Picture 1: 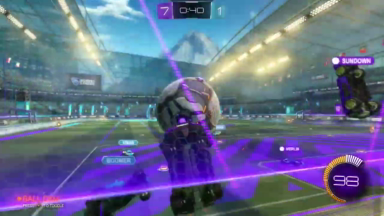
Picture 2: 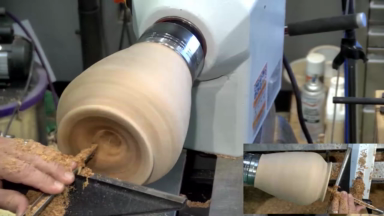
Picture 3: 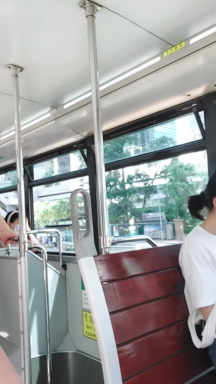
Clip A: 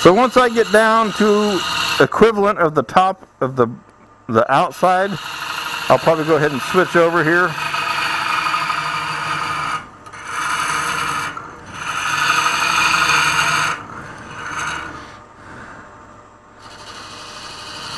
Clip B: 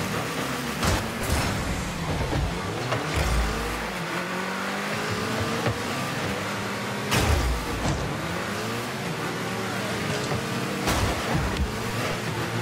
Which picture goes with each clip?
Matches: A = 2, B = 1